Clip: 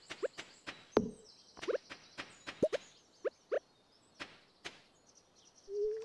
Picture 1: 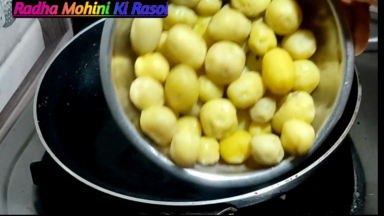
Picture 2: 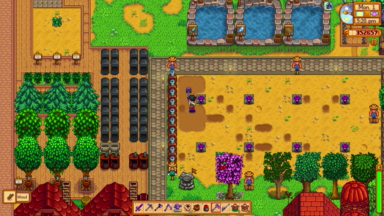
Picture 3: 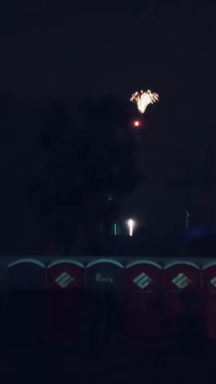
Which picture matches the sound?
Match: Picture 2